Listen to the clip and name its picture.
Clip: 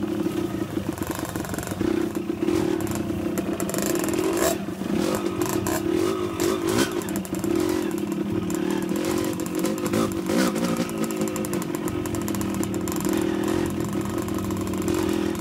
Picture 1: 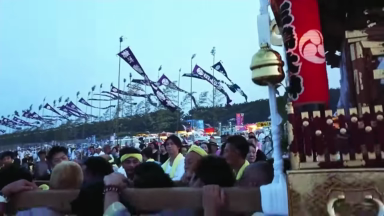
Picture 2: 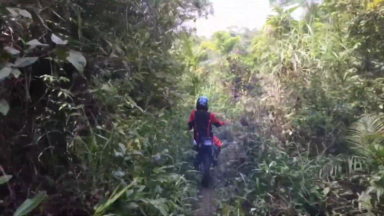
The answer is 2